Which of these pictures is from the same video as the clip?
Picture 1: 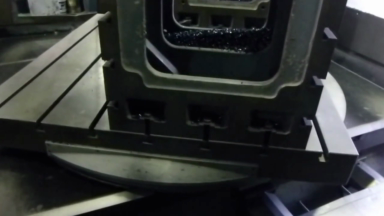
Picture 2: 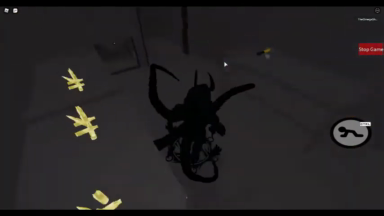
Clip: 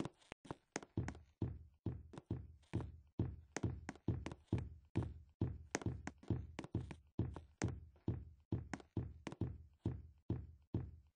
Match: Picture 2